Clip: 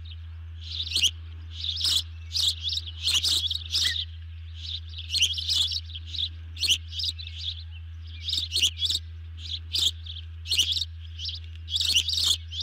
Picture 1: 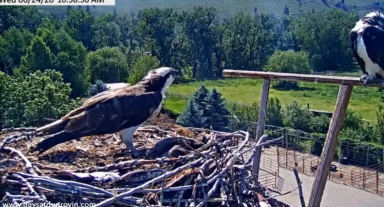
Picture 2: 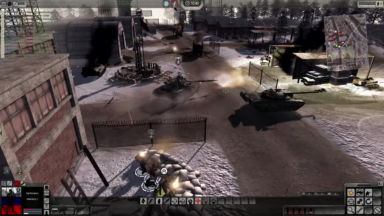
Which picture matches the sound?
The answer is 1